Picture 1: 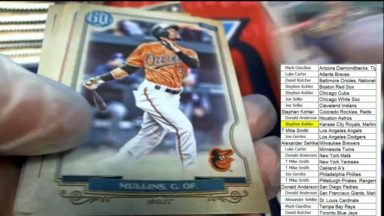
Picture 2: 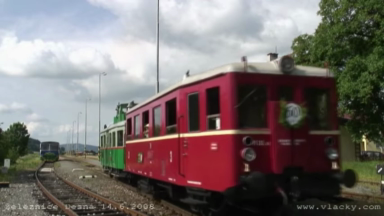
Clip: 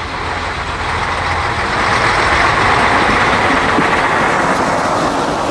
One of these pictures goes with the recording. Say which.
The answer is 2